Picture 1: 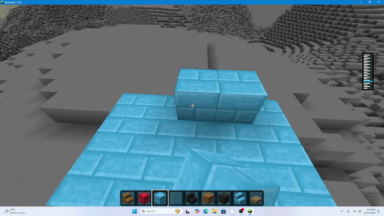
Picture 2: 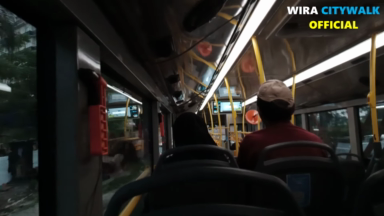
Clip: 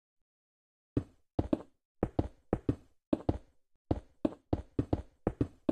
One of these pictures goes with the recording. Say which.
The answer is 1